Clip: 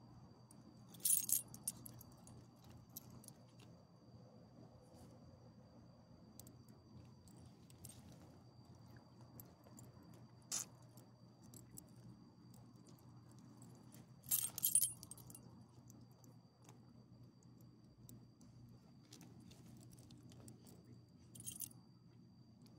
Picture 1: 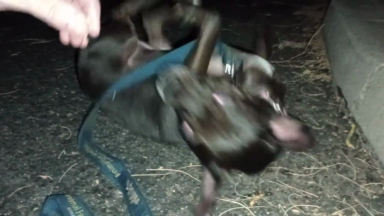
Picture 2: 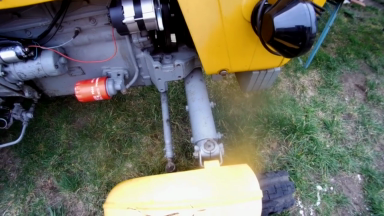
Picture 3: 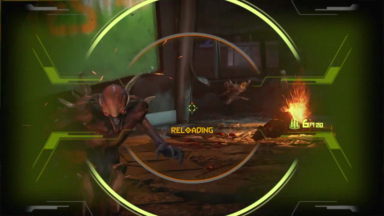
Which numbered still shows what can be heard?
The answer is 1